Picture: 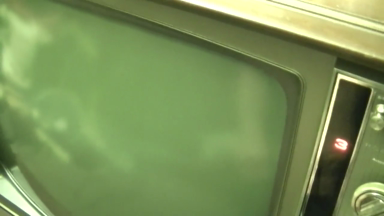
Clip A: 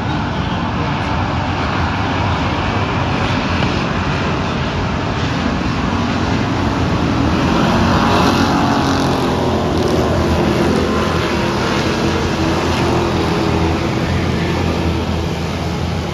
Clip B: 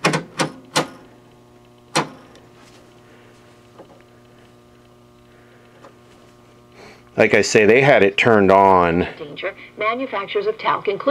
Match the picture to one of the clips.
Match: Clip B